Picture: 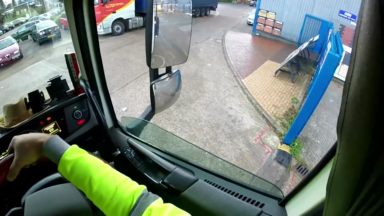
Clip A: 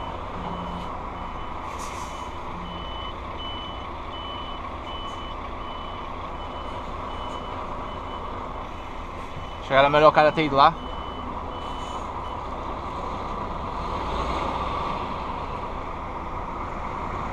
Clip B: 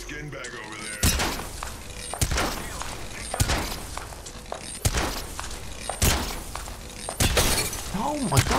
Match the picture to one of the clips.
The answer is A